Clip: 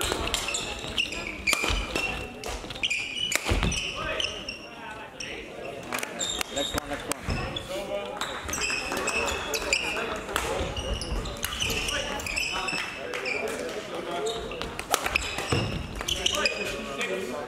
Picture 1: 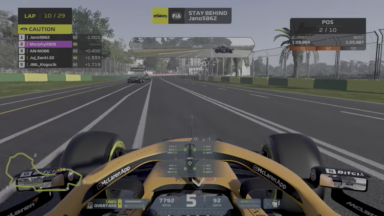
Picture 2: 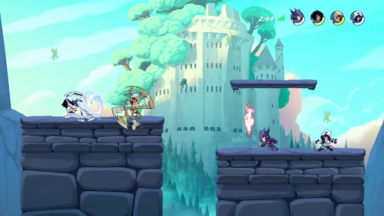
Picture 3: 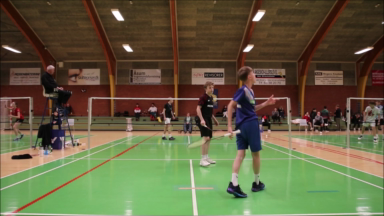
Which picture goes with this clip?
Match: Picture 3